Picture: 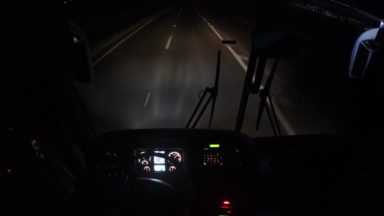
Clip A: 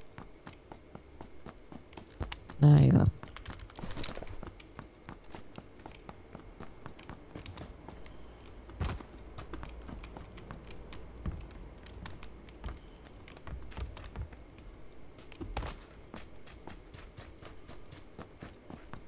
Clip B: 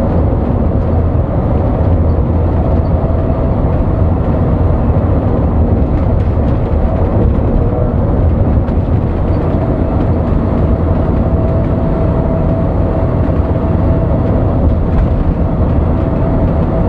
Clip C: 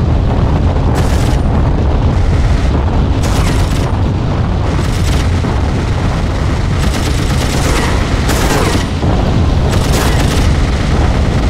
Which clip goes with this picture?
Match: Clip B